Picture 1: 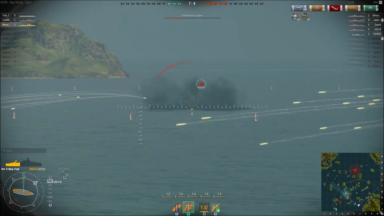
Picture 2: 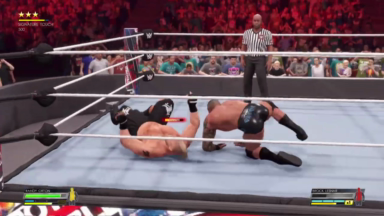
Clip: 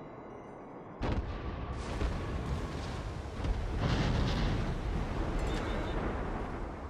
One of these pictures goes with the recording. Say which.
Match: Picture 1